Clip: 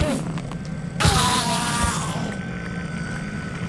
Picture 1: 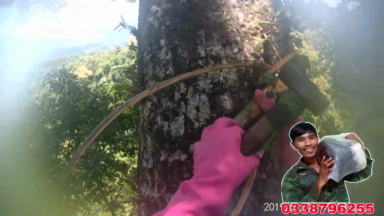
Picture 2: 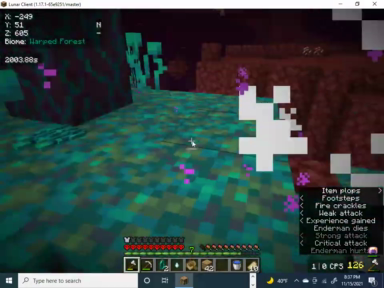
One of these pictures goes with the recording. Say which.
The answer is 2